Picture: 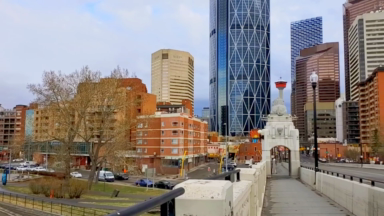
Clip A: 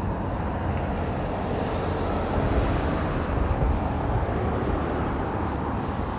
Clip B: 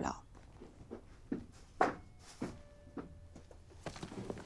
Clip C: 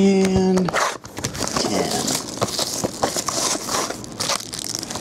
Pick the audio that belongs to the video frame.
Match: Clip A